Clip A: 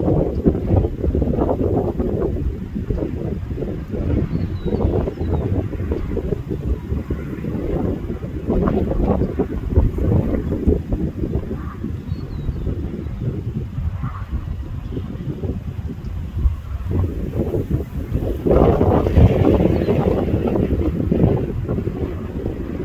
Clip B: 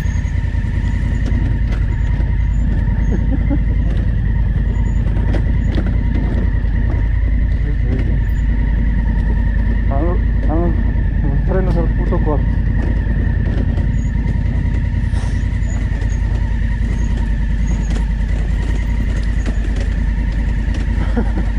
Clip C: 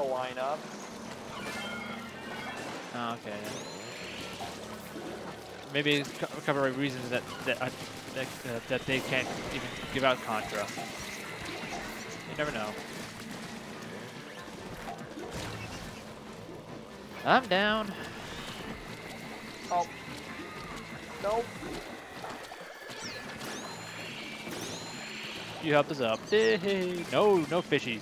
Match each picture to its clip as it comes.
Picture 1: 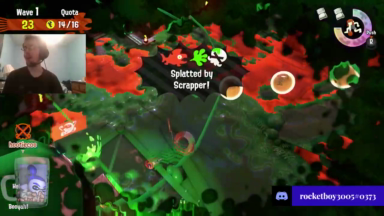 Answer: C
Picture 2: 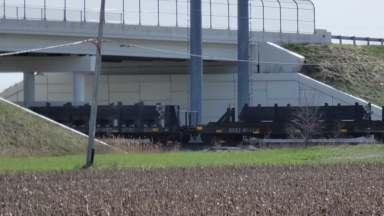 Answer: A